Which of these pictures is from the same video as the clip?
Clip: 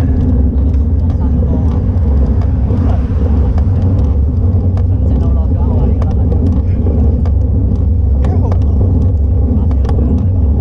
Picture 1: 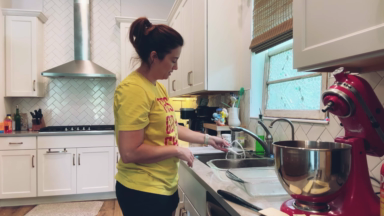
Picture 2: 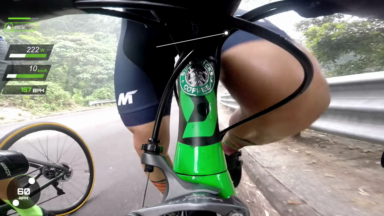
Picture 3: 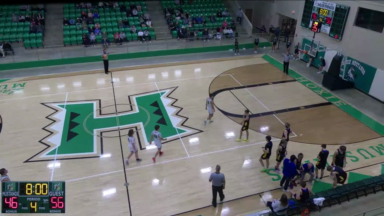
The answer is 2